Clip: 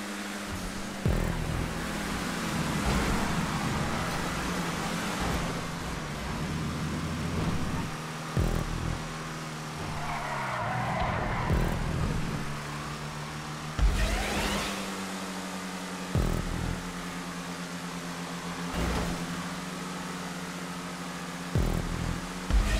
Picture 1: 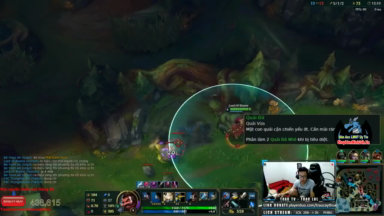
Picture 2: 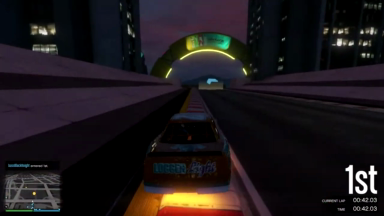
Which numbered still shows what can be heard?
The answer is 2